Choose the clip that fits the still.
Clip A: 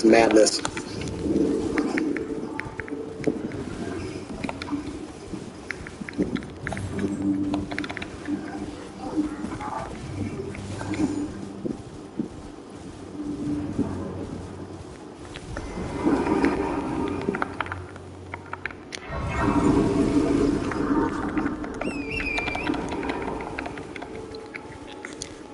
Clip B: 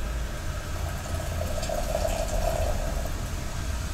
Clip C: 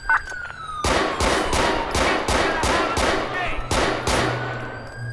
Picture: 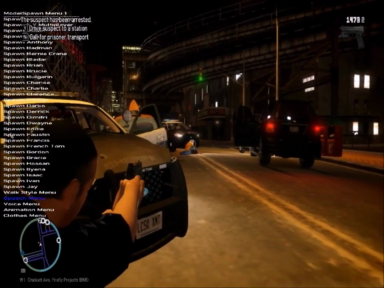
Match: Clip C